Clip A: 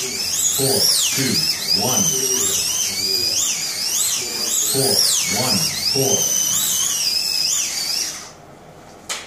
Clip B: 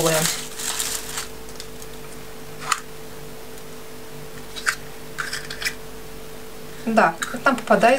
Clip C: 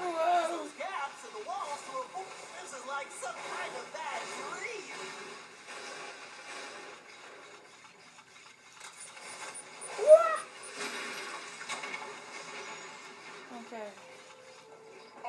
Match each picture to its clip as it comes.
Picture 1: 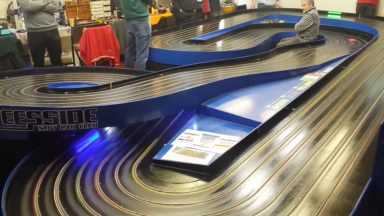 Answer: A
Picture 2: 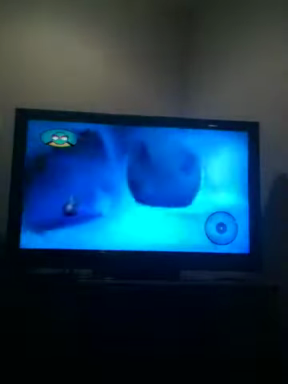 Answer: C